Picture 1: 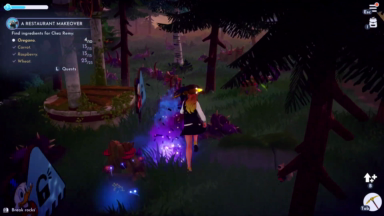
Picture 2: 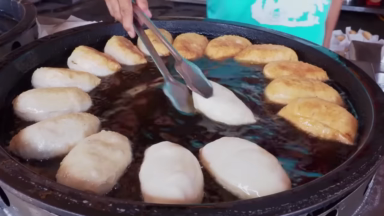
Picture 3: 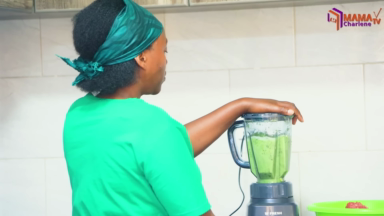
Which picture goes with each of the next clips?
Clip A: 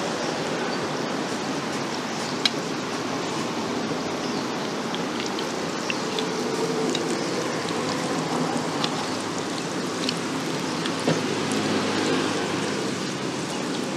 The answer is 2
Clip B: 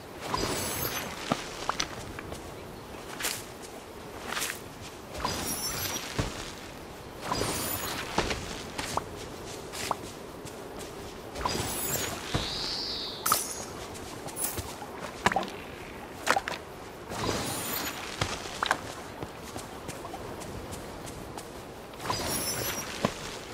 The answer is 1